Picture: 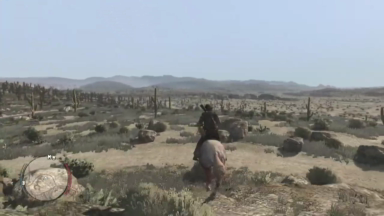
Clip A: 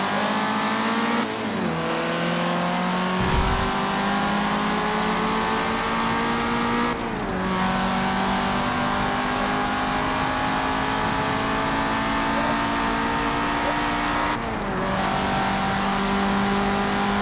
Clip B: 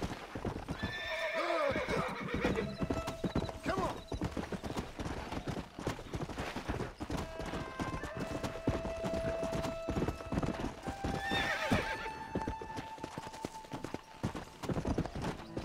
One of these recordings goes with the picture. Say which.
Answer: B